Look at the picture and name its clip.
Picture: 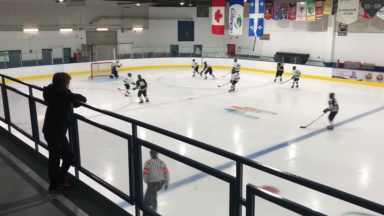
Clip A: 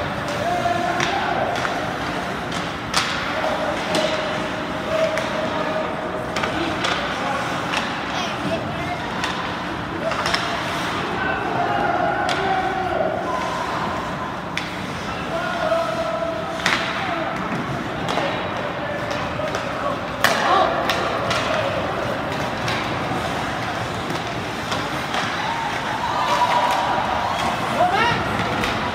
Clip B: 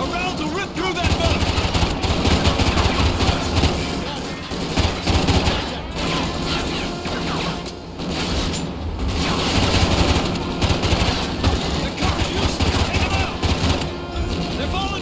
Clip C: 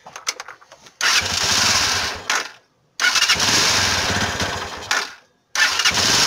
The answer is A